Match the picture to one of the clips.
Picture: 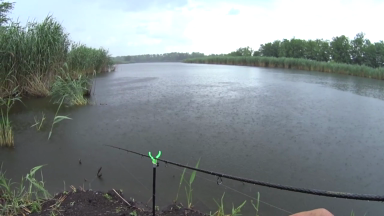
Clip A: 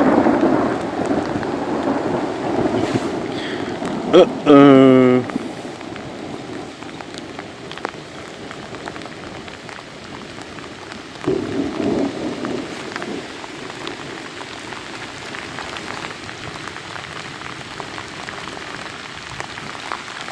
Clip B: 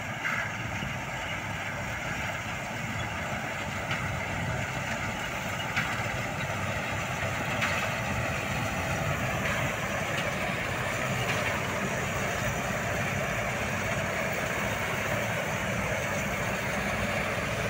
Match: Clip A